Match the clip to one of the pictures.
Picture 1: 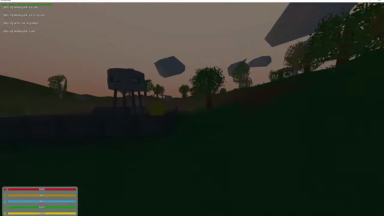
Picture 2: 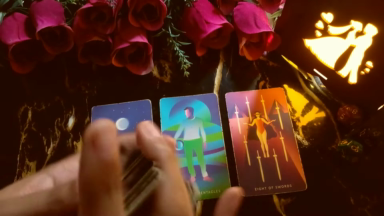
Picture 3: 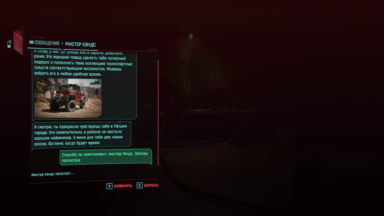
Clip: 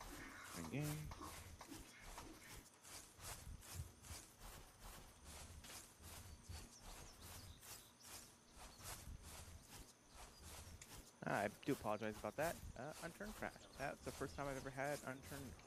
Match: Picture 1